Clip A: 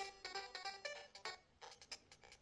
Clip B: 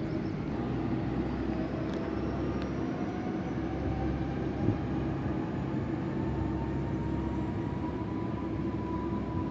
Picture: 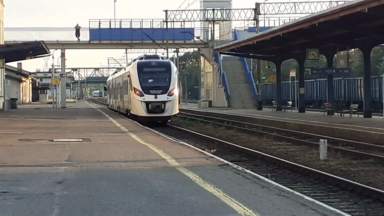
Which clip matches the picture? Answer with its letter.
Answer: B